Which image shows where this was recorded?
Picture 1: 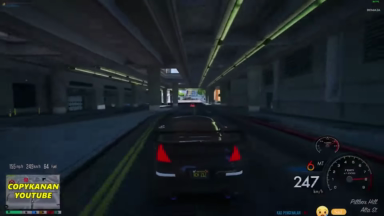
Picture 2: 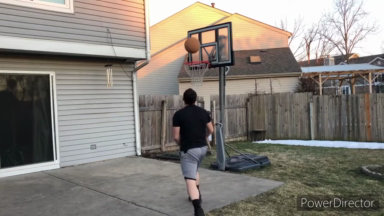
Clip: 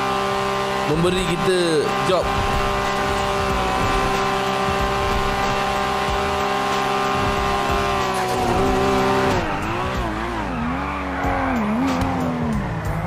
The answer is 1